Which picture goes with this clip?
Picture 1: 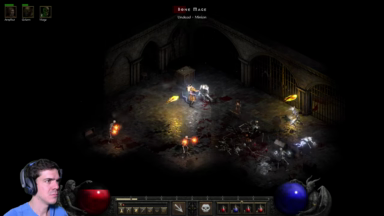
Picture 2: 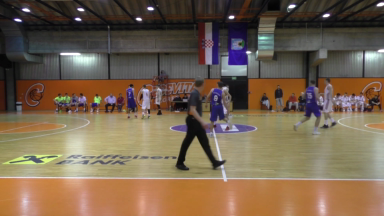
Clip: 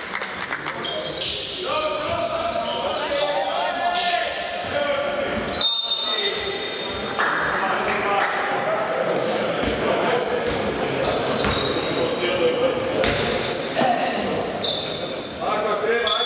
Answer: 2